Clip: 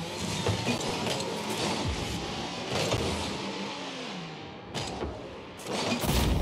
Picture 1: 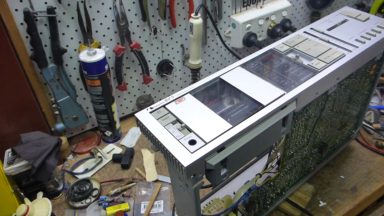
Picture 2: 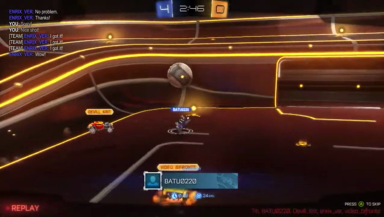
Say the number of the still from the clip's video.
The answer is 2